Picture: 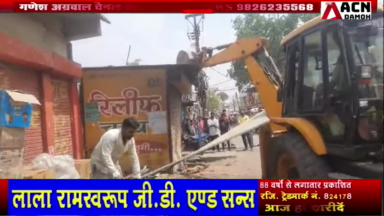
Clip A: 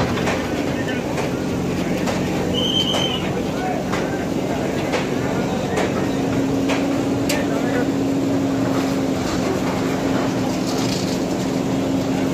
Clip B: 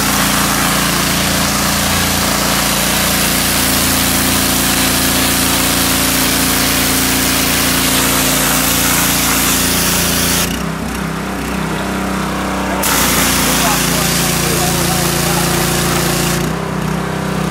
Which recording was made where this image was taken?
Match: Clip A